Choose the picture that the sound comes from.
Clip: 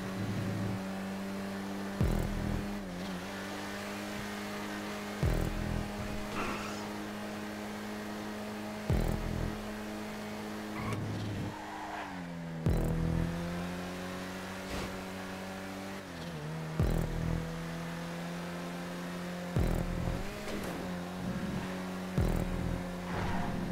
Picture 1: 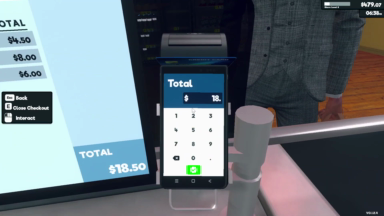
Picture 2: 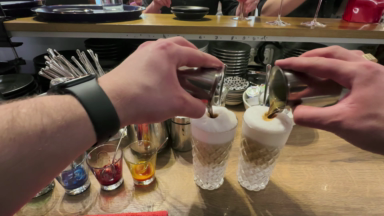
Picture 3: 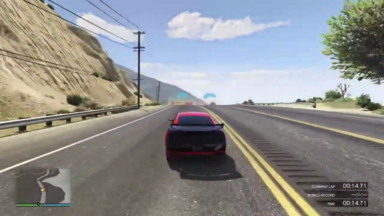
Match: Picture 3